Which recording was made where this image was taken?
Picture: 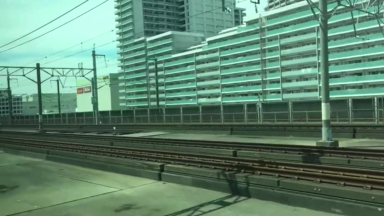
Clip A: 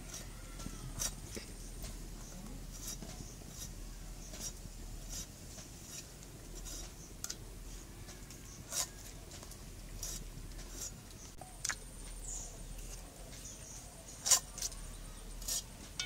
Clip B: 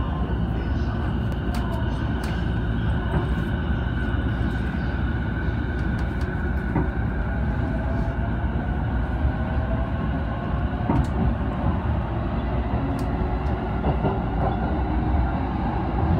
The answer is B